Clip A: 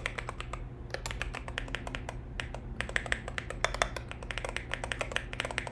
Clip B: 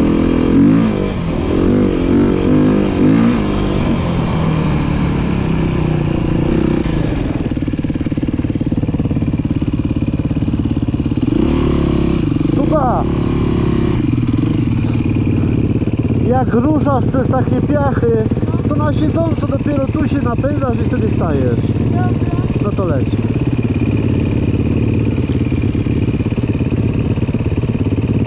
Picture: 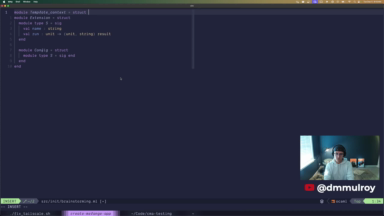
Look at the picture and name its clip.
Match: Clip A